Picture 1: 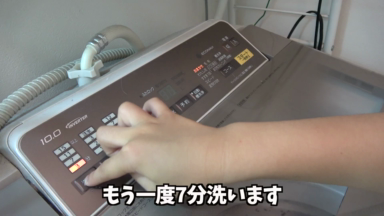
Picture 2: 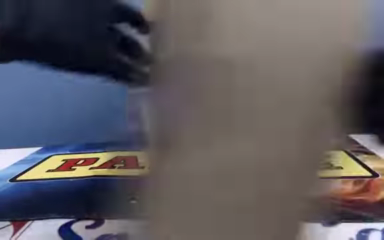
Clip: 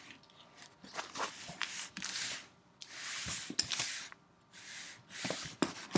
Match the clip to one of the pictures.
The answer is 2